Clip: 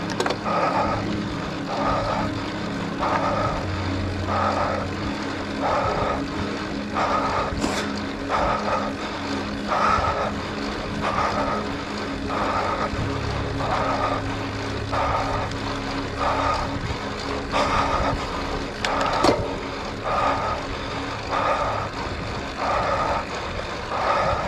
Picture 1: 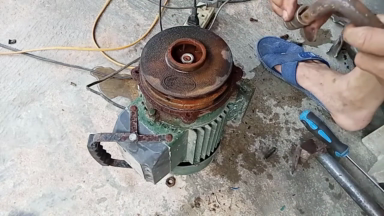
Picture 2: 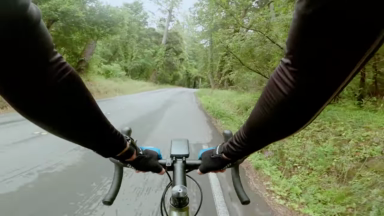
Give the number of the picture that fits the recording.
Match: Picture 2